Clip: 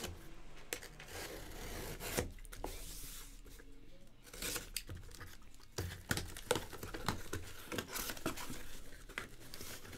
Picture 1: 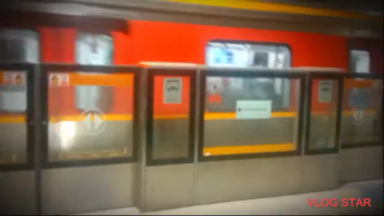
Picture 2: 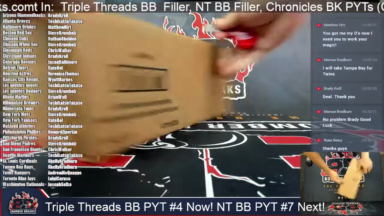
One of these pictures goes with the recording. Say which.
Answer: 2